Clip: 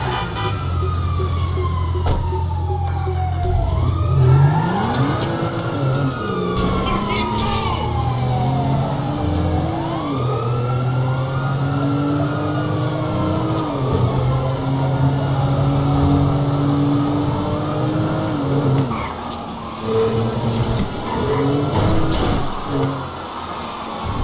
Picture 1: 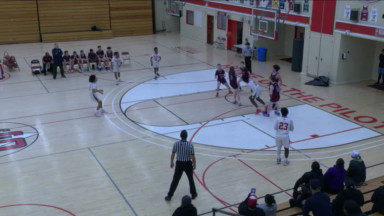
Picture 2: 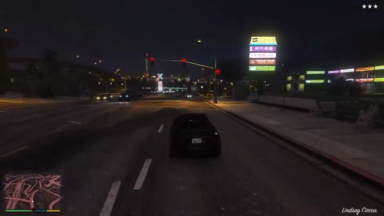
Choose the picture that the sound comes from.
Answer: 2